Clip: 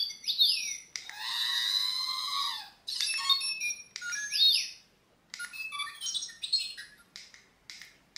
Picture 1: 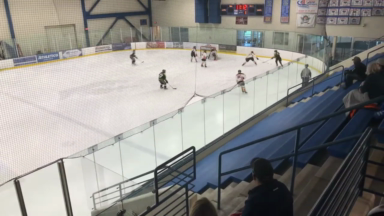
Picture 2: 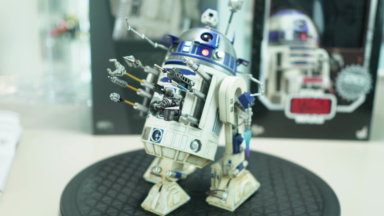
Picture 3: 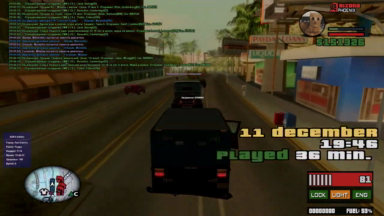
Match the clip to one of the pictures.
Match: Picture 2